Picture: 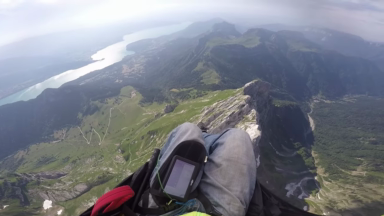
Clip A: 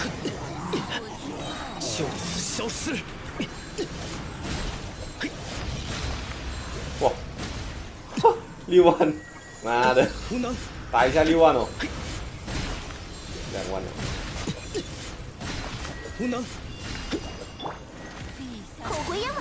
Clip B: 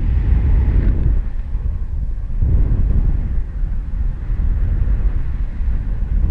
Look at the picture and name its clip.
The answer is B